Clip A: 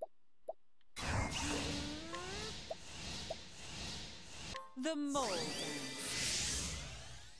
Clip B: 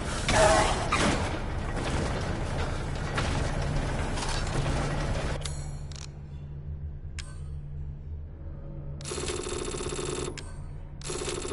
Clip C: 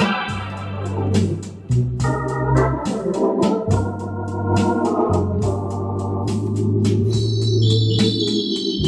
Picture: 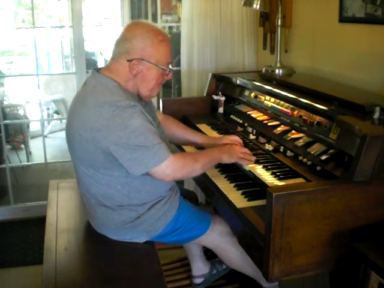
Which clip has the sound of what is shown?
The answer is C